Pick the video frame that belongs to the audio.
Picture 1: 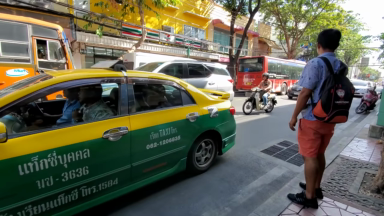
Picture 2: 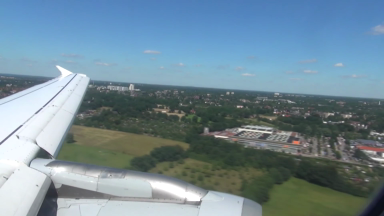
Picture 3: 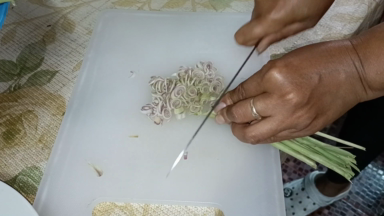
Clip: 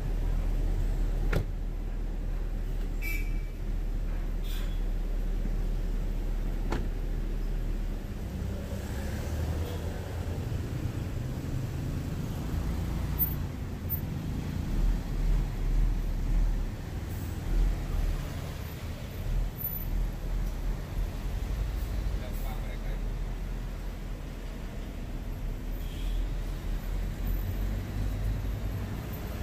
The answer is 1